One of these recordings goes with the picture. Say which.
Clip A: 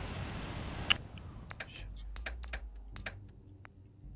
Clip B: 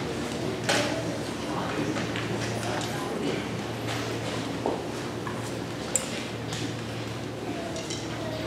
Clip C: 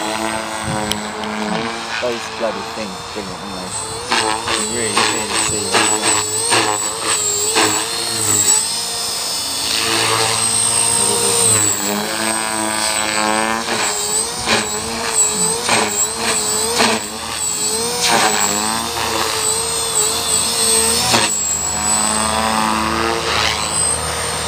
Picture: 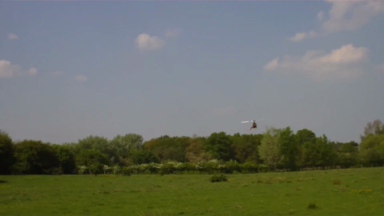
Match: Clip C